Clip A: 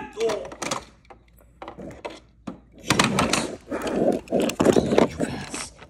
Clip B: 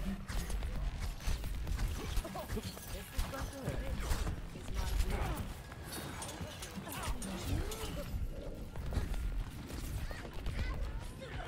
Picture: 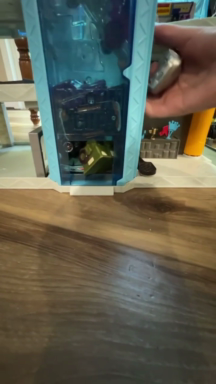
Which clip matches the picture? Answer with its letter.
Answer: A